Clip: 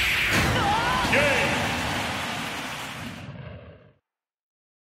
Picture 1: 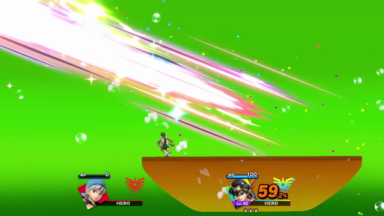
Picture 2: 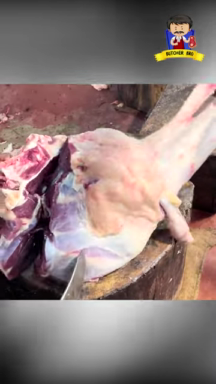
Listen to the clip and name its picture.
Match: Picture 1